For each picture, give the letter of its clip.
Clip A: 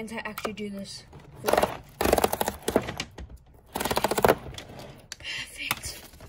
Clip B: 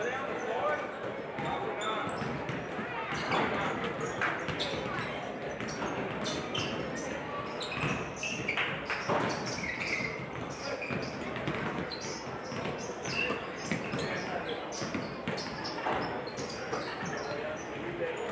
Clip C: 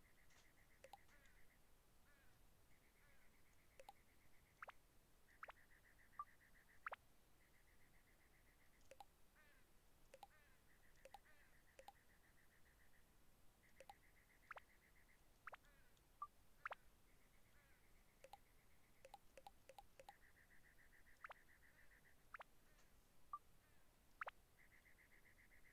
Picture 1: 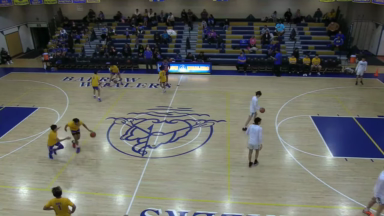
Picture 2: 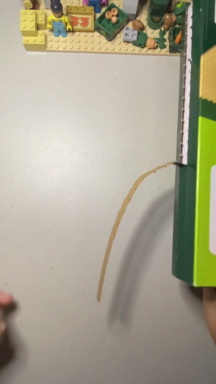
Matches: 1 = B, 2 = A